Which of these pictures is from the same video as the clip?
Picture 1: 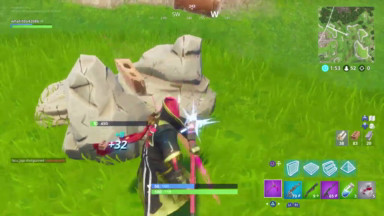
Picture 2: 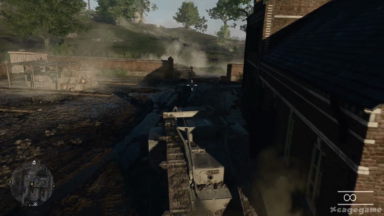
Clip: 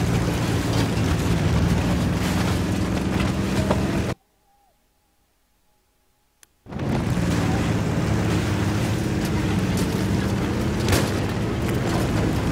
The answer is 2